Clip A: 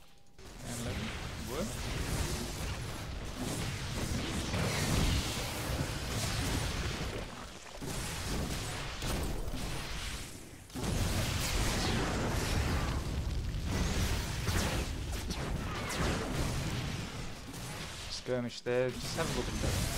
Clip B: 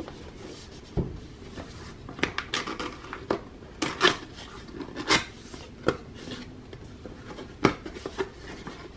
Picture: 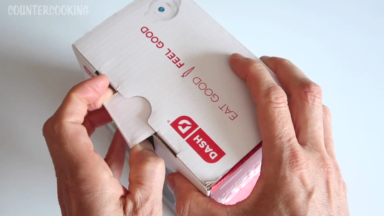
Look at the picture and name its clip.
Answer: B